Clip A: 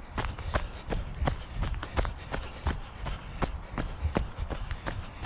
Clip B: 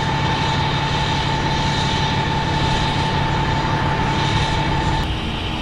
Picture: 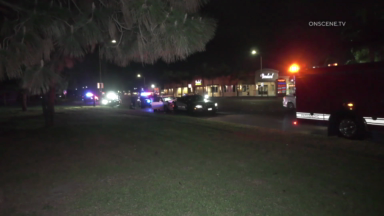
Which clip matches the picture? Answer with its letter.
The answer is B